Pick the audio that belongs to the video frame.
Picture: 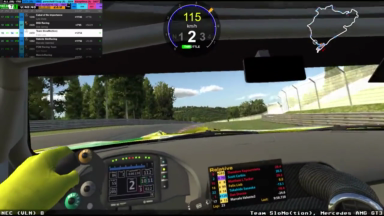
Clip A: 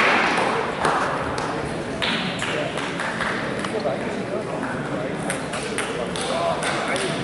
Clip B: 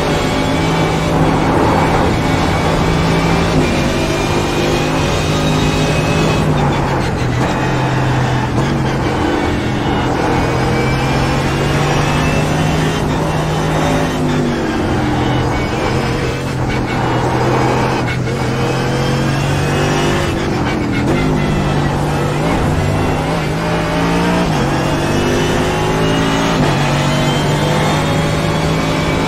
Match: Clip B